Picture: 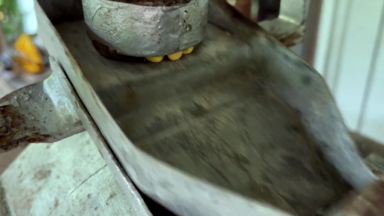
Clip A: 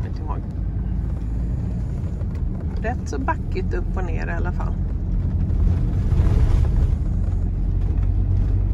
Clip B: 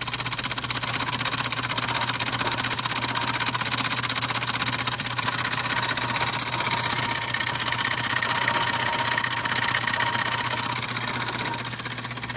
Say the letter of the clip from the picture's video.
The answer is B